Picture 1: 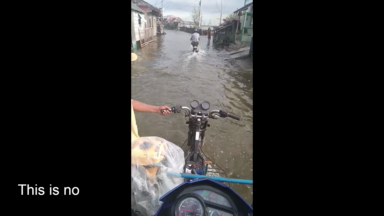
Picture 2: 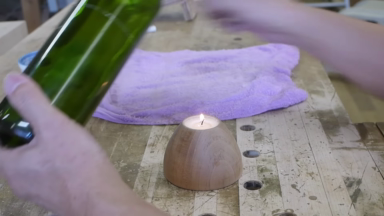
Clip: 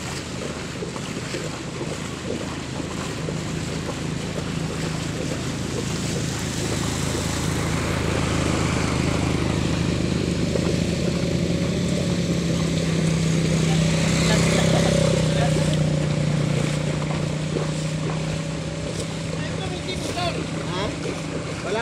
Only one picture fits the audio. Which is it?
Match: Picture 1